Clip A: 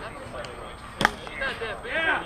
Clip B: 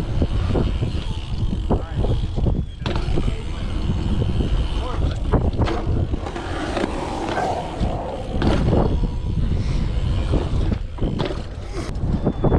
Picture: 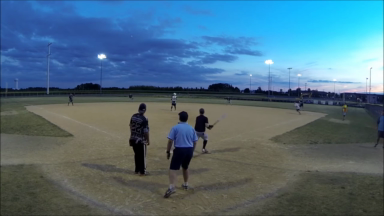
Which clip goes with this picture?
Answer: A